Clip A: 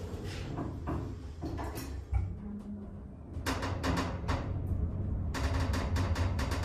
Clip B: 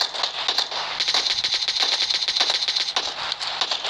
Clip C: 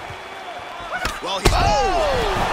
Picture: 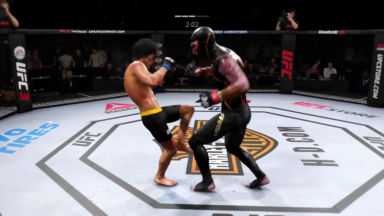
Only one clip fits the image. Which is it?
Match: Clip C